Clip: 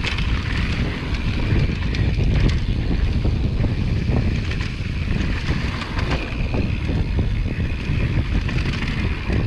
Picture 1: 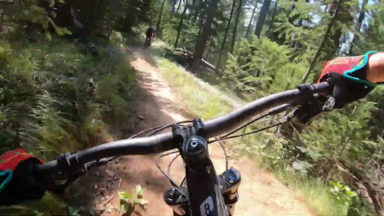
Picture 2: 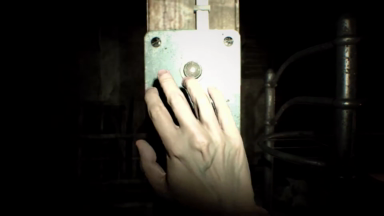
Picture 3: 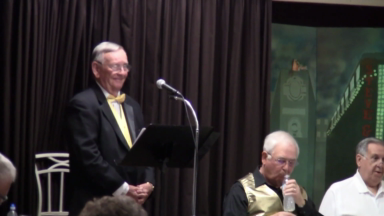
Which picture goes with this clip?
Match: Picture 1